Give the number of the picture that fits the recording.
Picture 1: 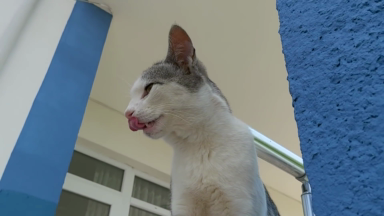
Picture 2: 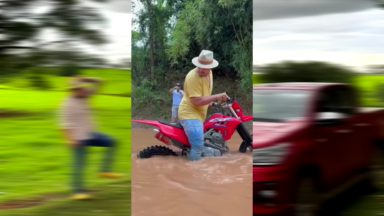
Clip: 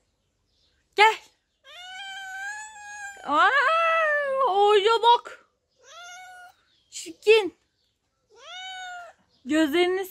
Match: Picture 1